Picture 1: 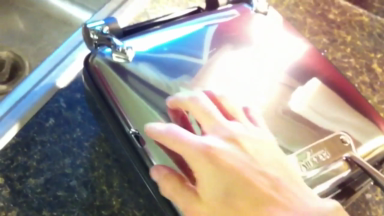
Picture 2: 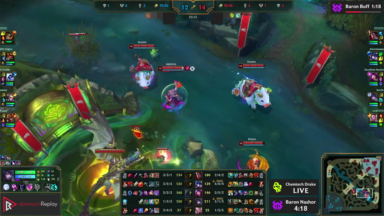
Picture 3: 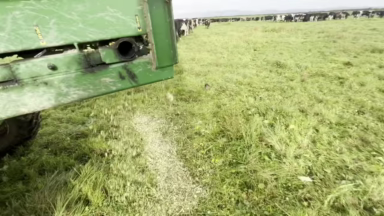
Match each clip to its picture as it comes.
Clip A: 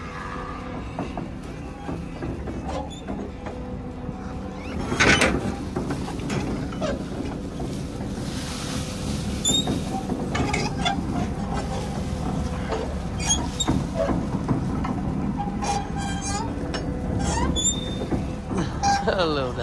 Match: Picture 3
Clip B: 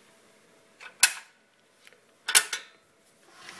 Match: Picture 1